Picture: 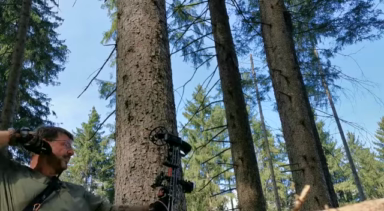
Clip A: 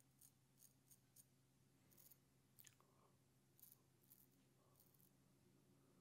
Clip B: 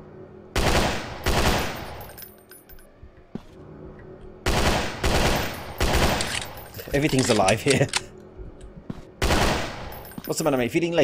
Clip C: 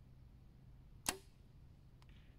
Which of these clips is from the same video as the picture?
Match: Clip C